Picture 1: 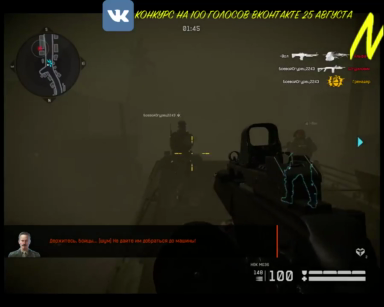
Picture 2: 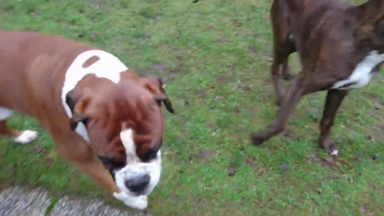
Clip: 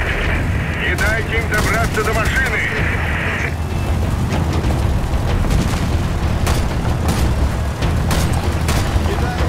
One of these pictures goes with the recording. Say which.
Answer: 1